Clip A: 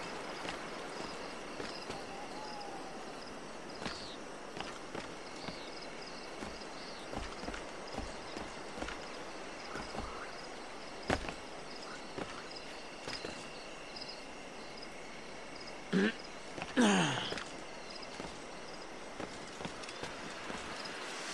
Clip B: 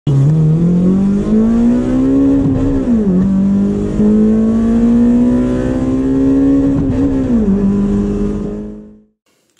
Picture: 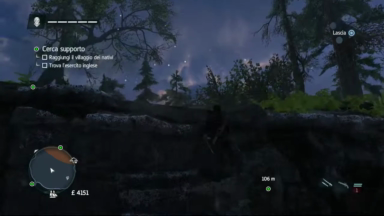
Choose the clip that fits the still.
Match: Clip A